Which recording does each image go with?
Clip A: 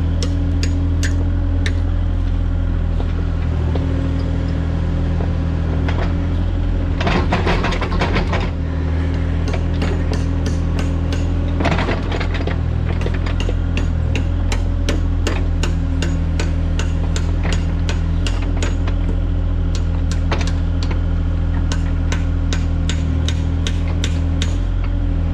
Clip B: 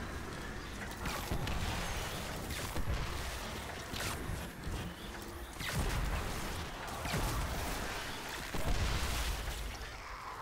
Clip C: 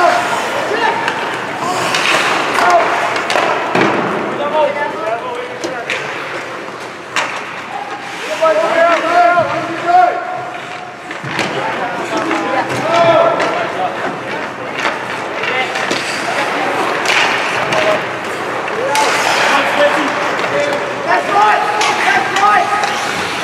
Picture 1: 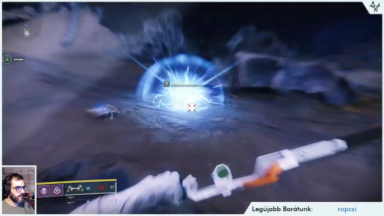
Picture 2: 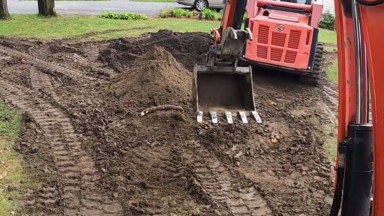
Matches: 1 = B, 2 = A